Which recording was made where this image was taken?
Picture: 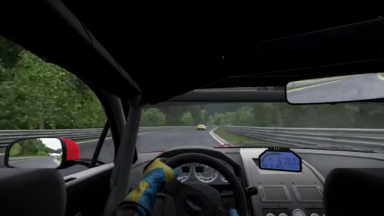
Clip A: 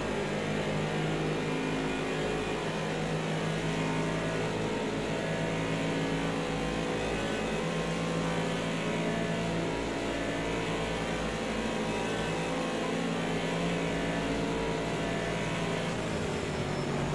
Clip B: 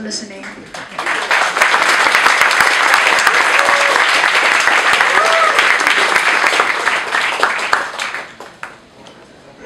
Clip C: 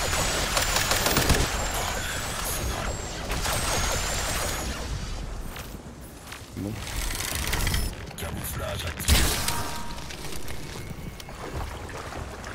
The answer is A